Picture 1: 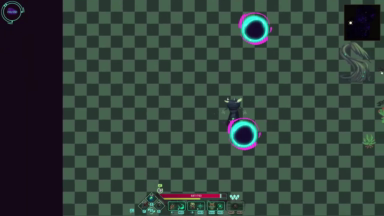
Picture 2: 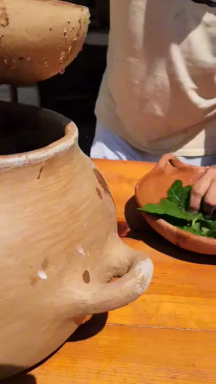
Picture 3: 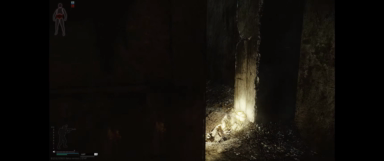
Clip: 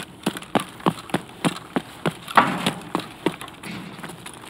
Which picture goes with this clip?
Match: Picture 3